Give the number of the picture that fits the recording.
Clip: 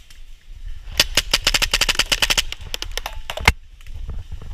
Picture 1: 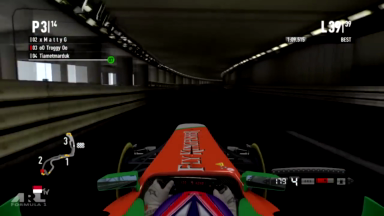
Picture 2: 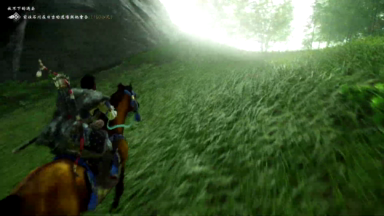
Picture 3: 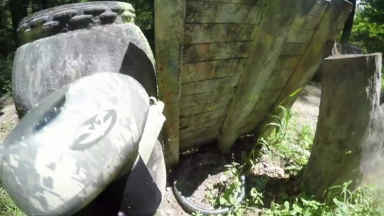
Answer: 3